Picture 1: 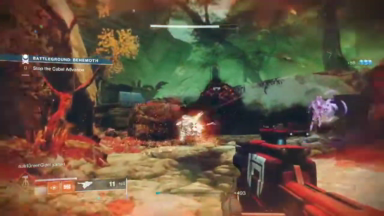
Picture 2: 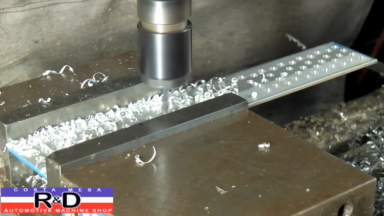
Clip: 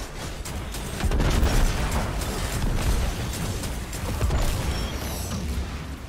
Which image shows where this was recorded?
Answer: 1